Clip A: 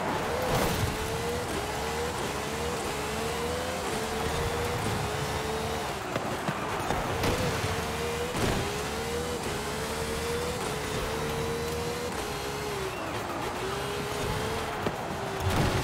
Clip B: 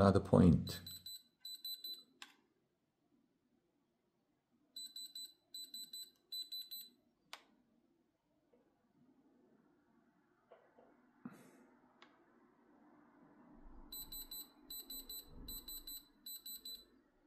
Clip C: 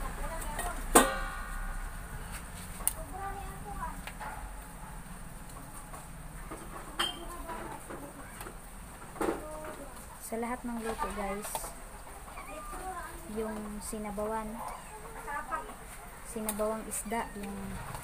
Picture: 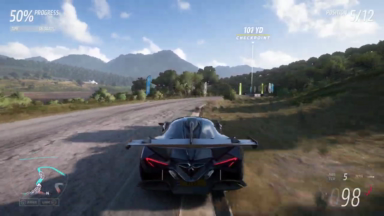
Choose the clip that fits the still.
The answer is A